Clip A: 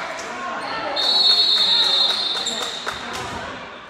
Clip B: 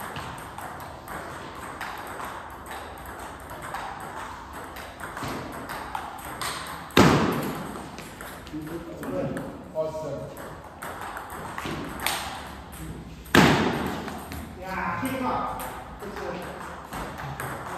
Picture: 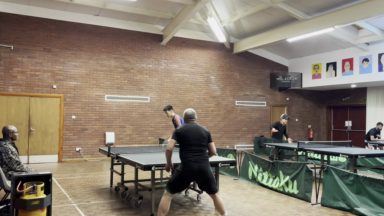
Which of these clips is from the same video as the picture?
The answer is B